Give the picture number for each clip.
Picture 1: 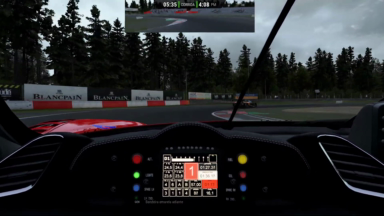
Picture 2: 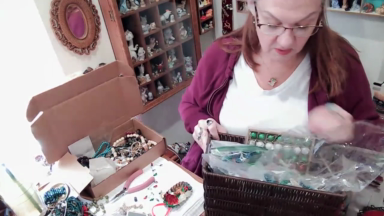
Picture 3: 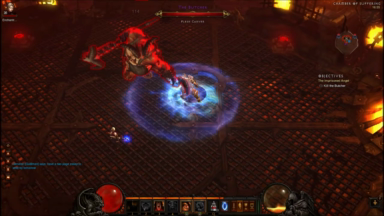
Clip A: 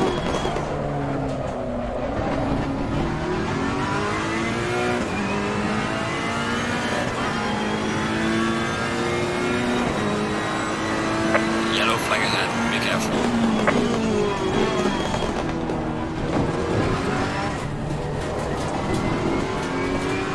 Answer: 1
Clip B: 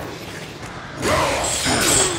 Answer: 3